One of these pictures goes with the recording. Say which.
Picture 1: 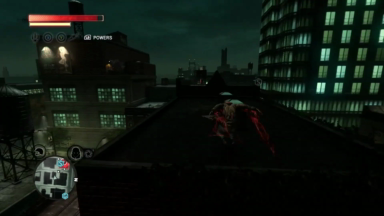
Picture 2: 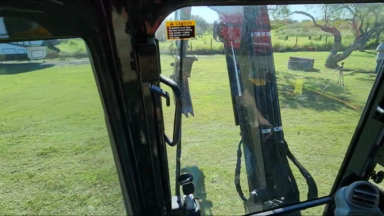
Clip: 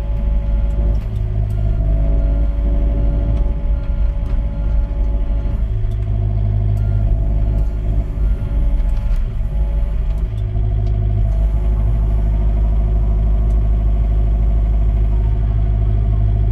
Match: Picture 2